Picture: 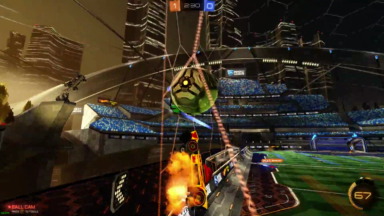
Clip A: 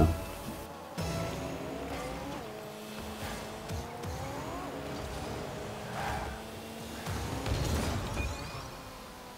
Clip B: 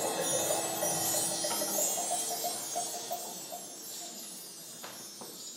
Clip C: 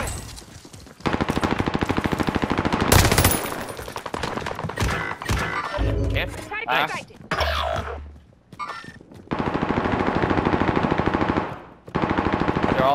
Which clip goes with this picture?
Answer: A